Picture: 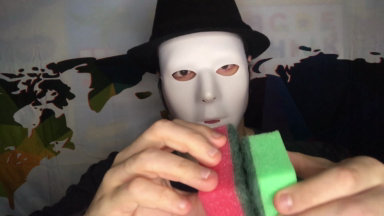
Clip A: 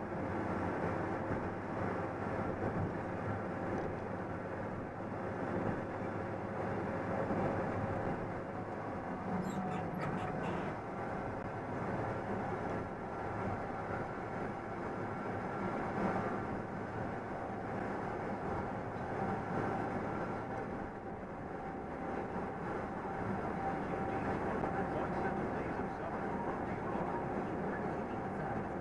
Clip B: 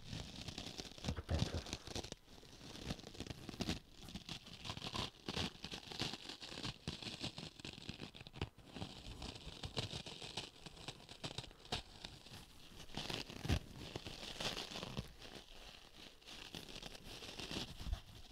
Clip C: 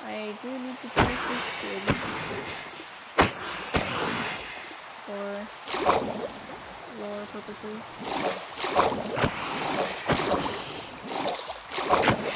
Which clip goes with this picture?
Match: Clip B